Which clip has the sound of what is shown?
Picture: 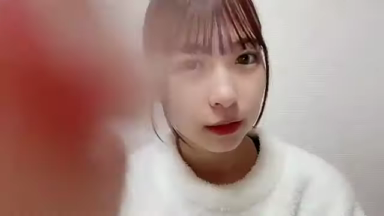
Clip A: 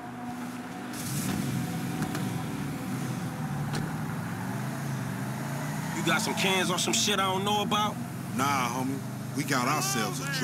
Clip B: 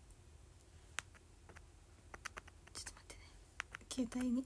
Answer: B